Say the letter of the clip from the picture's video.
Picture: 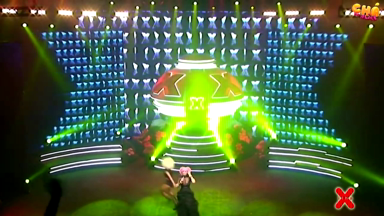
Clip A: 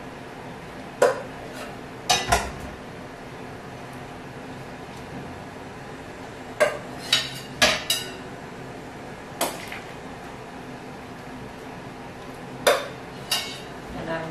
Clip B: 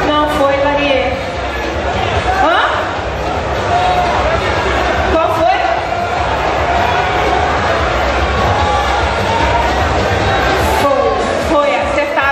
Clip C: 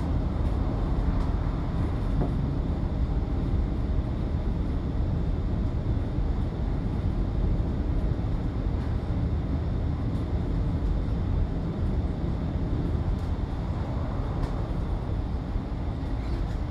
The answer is B